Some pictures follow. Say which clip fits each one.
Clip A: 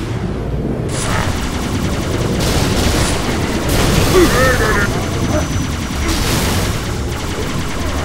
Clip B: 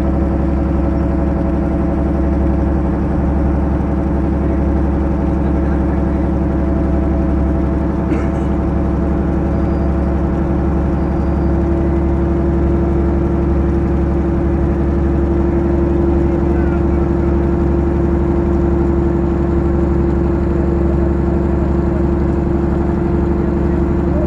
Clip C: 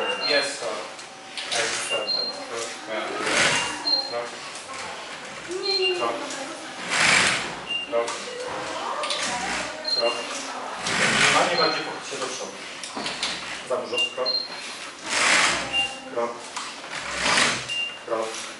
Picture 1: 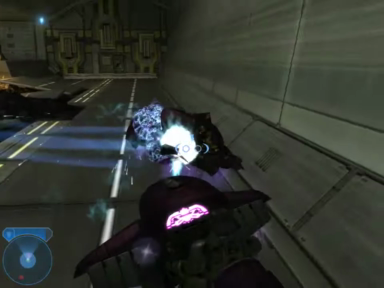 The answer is A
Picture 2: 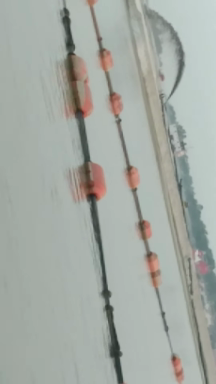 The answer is B